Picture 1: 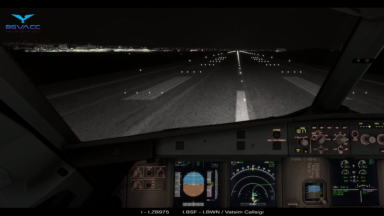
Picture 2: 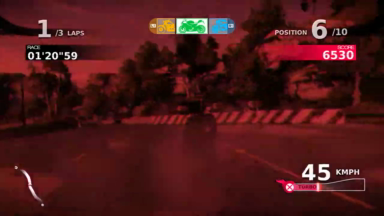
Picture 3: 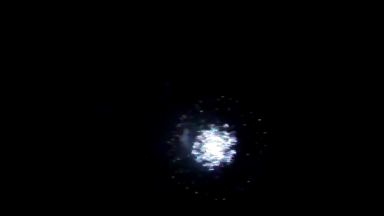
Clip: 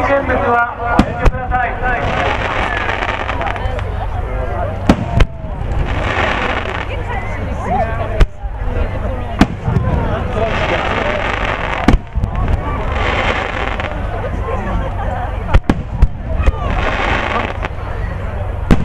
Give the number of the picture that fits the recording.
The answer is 3